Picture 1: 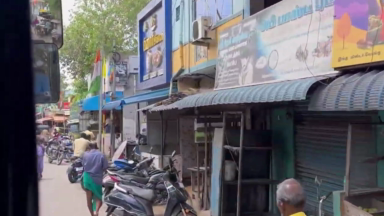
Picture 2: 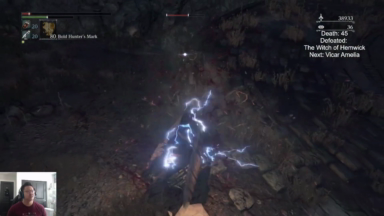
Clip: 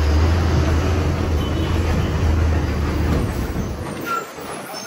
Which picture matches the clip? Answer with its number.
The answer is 1